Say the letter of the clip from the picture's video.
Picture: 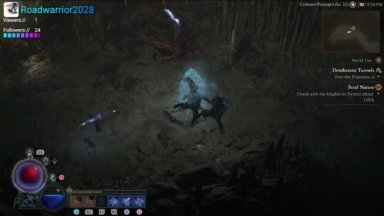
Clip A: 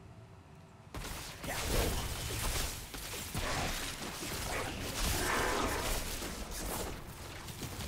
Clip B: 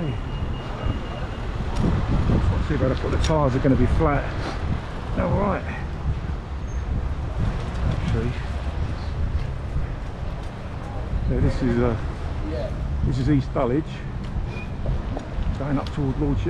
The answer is A